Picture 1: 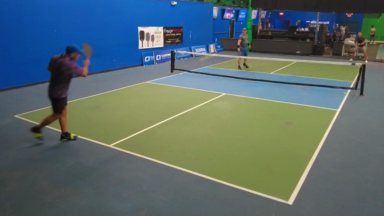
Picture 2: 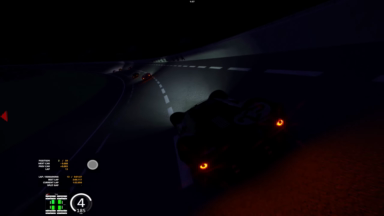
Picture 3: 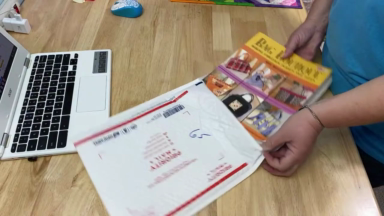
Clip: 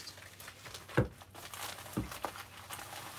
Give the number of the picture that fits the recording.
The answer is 3